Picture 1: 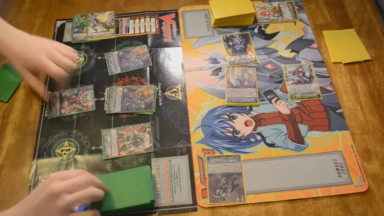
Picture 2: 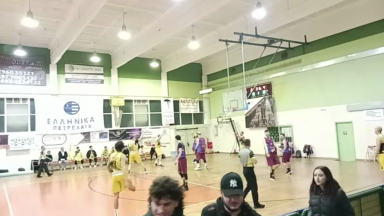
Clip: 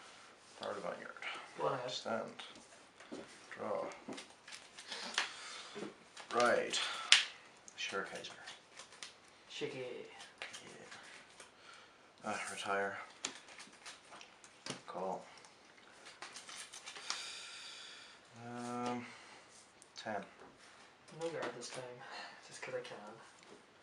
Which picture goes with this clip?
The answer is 1